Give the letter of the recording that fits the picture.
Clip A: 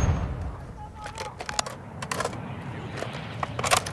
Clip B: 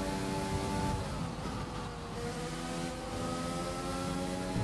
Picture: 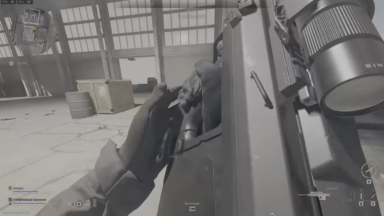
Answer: A